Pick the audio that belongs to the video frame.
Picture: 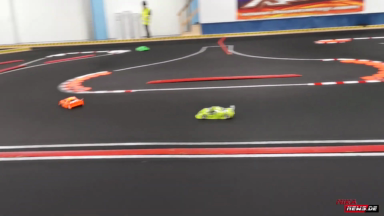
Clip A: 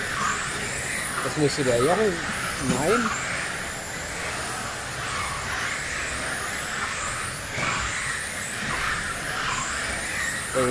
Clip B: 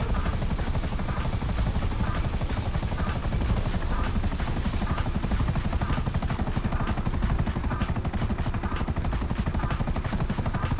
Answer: A